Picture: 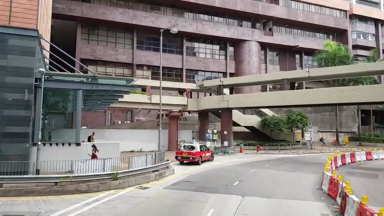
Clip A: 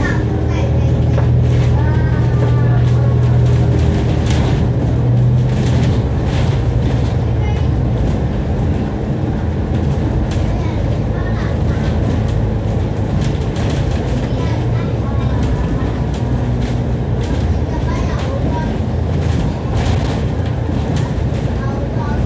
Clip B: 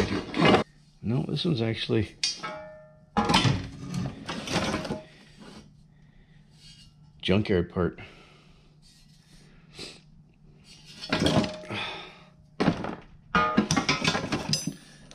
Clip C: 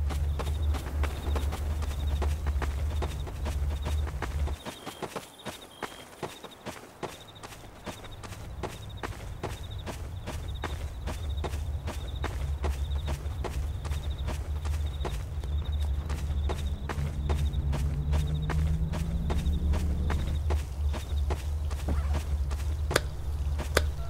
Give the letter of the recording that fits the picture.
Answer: A